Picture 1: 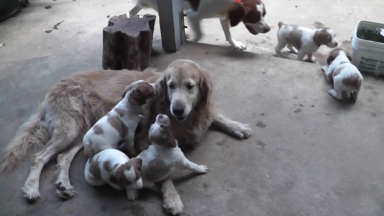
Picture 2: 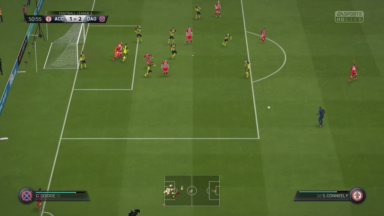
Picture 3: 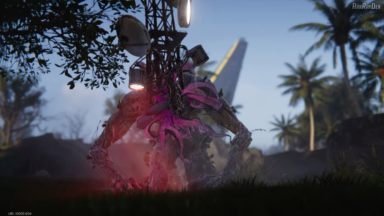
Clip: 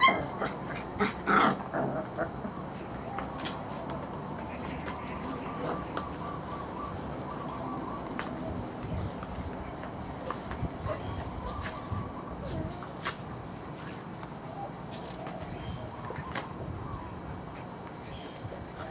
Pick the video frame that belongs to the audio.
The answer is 1